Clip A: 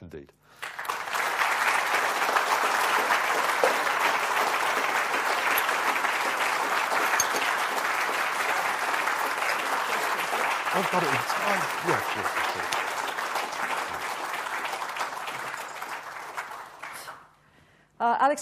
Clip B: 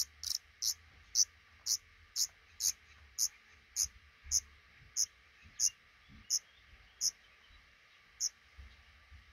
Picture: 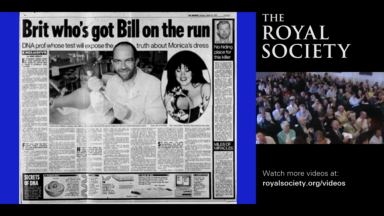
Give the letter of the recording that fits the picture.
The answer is A